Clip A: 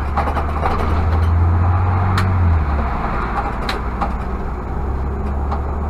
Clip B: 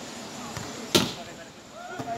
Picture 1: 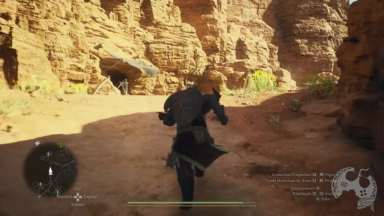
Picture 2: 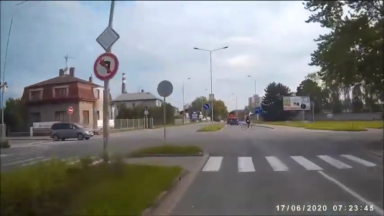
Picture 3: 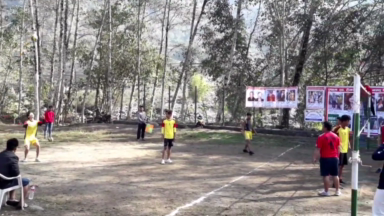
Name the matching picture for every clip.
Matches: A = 2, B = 3